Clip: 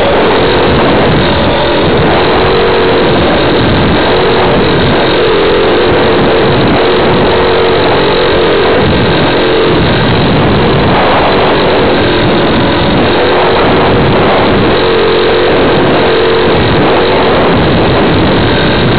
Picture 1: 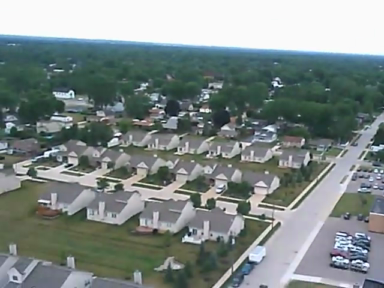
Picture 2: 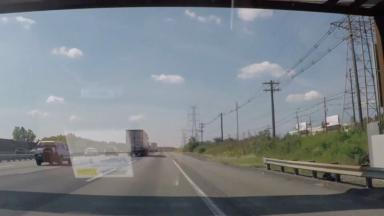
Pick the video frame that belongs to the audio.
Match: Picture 1